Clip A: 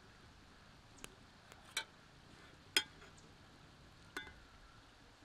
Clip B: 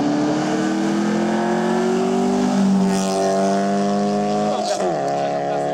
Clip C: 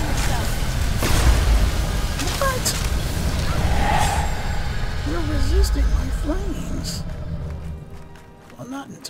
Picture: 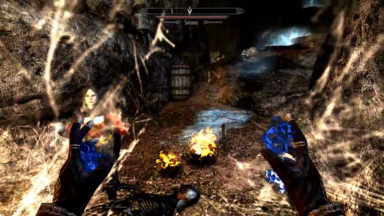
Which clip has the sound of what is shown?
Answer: C